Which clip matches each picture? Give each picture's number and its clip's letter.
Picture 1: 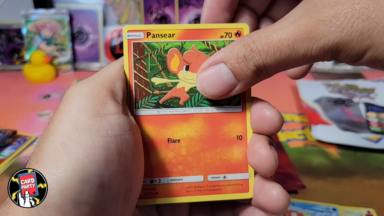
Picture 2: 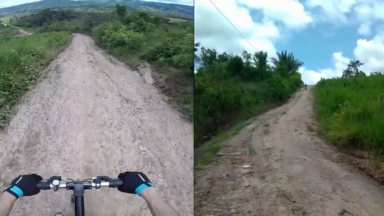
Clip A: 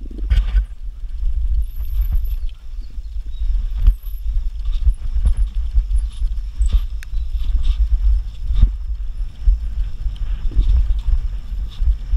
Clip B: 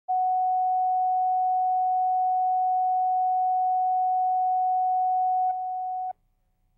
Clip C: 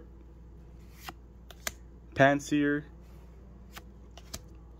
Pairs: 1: C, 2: A